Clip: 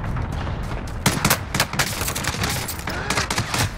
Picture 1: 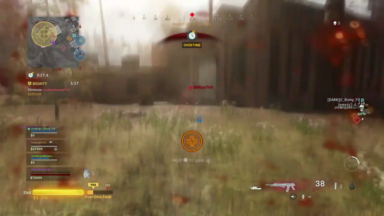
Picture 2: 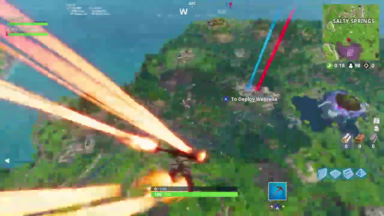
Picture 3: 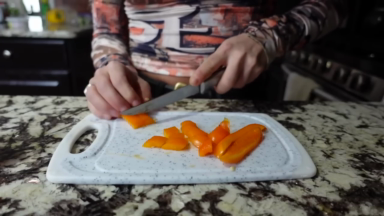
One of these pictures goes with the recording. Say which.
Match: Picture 1